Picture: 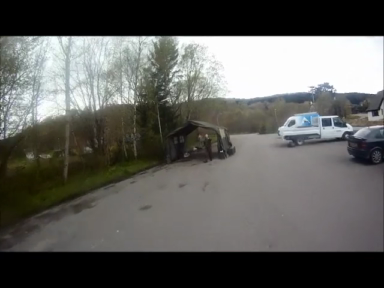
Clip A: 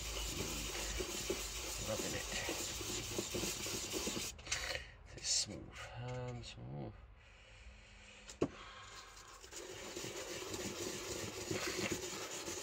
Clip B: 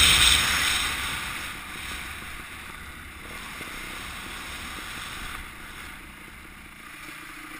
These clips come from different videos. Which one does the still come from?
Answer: B